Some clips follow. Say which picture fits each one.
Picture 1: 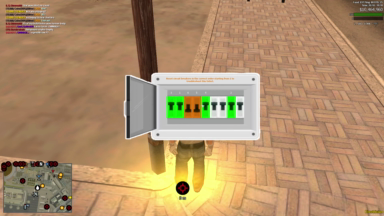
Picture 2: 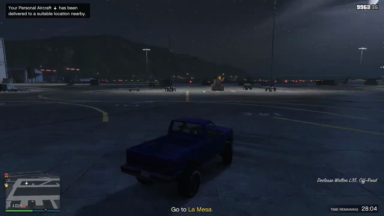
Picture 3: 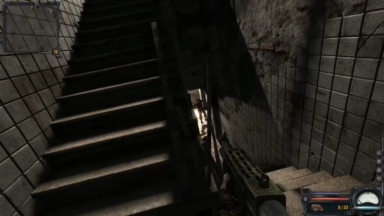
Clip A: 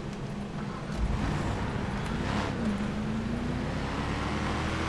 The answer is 2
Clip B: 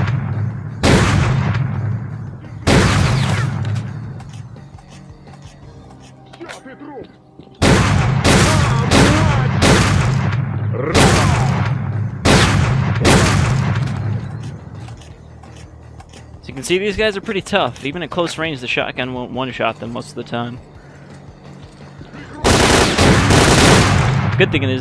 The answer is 3